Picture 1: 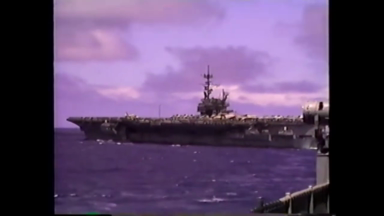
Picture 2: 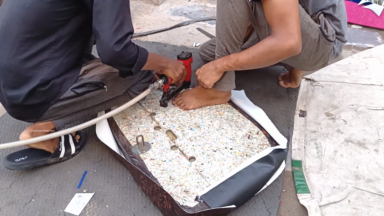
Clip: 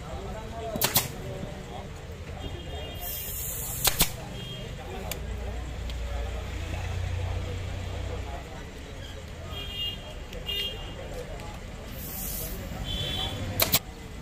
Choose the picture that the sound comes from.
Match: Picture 2